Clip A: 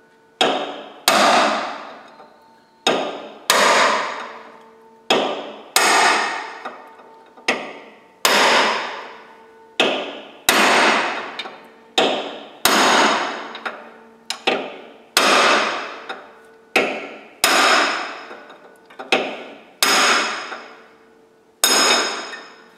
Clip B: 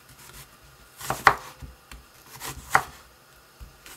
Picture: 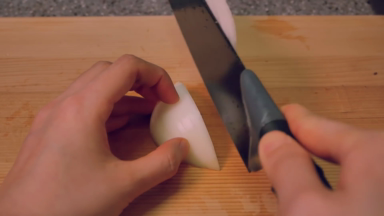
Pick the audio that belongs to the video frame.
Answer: B